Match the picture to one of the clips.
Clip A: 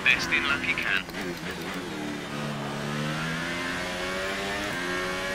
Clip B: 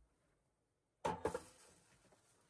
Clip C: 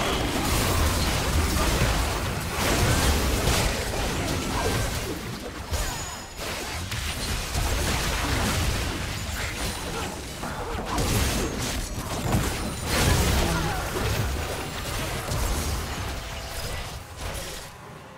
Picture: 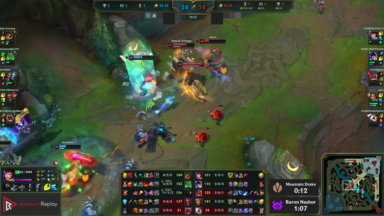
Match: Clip C